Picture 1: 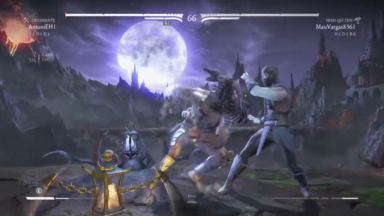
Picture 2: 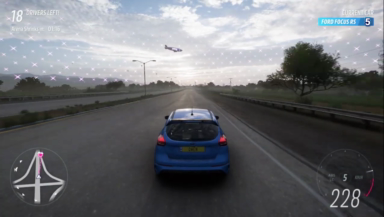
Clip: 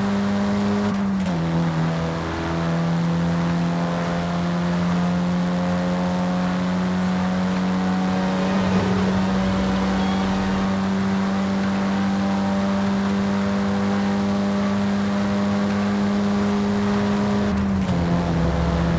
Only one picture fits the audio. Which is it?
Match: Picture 2